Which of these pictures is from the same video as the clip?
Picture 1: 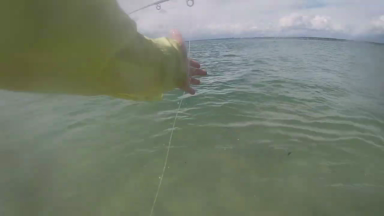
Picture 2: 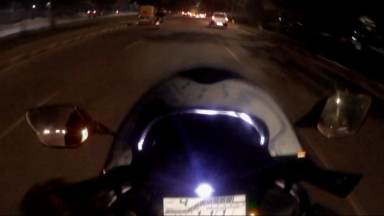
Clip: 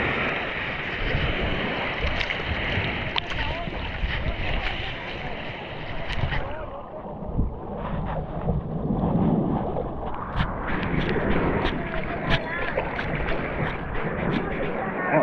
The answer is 1